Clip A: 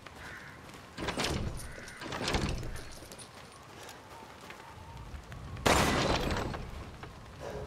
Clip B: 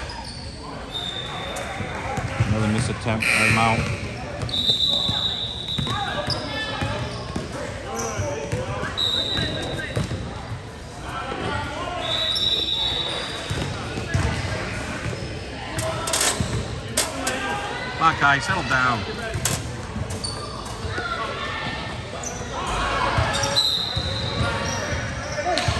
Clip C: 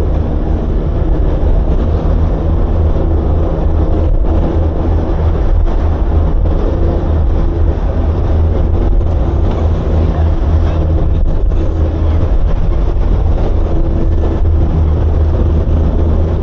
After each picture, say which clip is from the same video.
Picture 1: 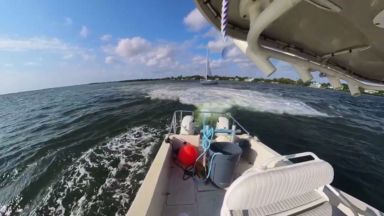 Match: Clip C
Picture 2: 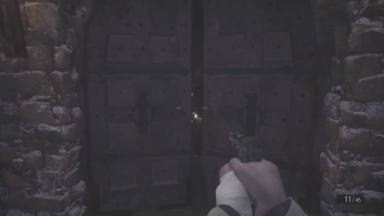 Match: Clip A